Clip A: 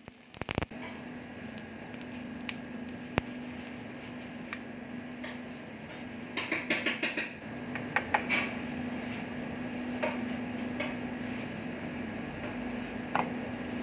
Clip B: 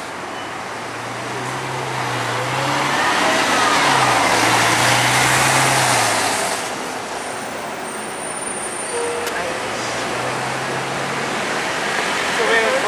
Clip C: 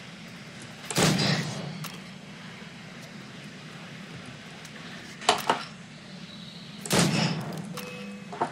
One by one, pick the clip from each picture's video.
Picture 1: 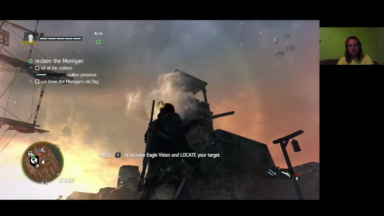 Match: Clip C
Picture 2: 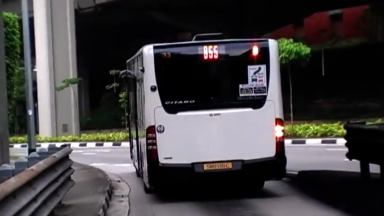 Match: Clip B